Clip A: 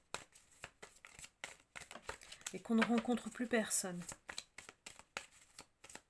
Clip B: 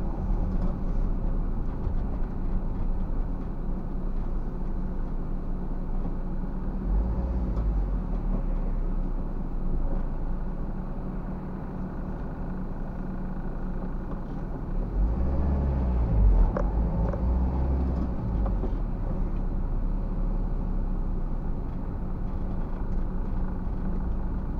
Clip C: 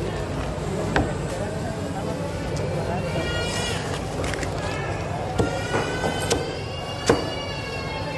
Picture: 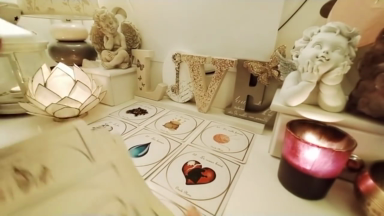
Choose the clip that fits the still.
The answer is A